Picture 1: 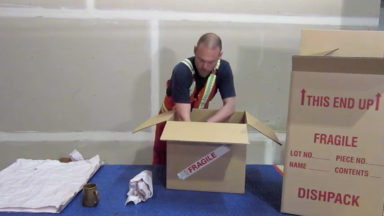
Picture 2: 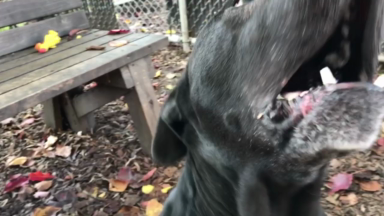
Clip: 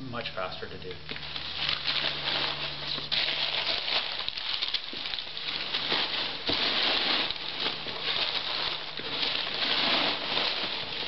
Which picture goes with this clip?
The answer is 1